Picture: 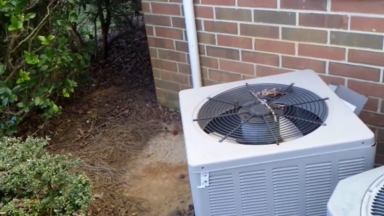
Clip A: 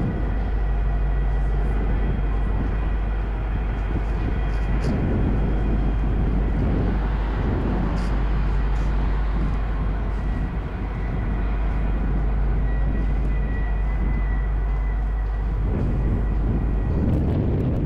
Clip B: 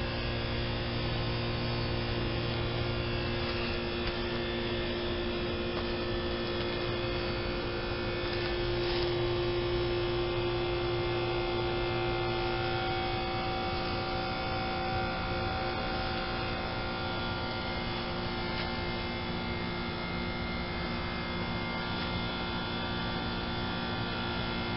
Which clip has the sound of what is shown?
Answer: B